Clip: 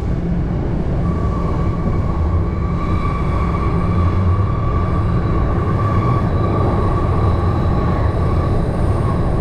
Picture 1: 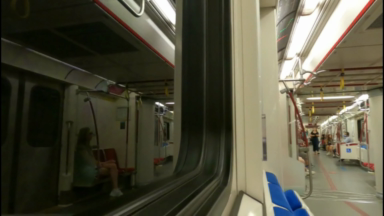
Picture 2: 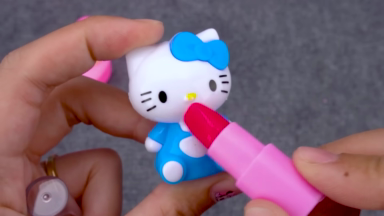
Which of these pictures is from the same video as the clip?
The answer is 1